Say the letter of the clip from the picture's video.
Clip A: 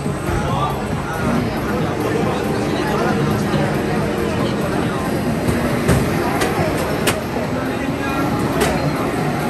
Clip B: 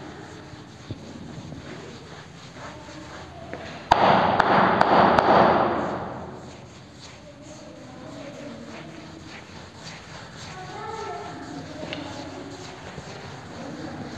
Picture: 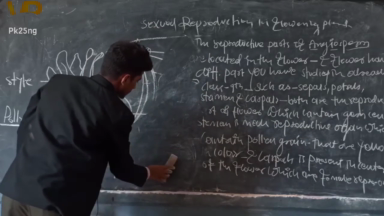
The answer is B